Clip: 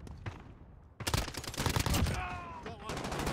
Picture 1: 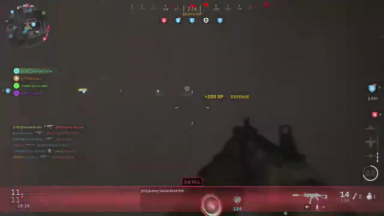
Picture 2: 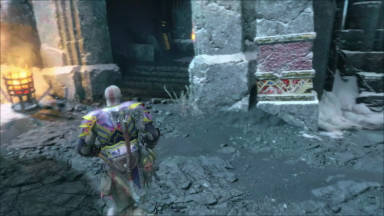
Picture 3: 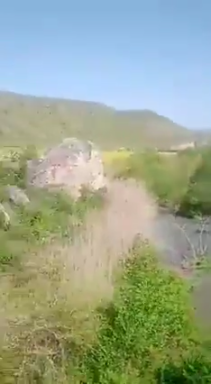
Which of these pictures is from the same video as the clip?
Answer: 1